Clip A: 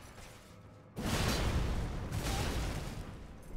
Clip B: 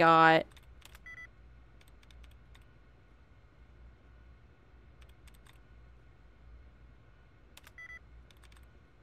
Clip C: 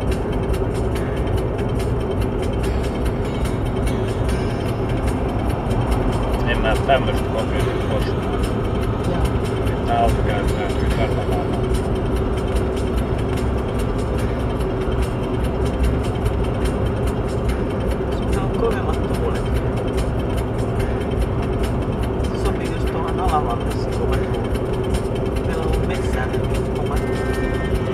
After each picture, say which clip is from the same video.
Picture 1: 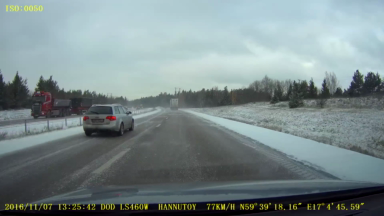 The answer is C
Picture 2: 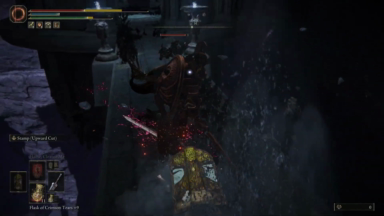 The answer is A